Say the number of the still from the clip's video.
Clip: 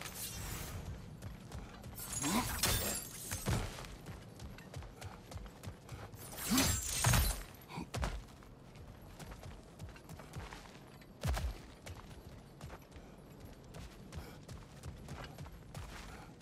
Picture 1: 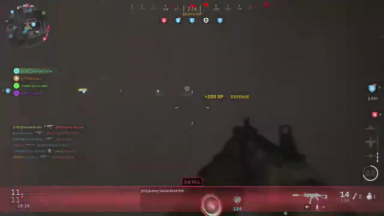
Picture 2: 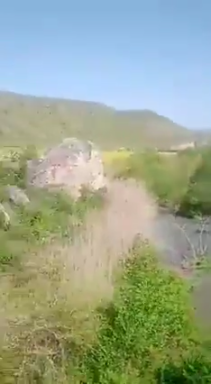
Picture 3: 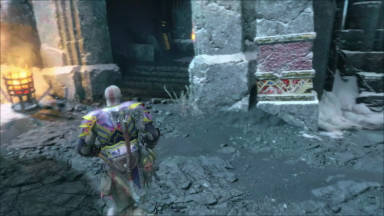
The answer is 3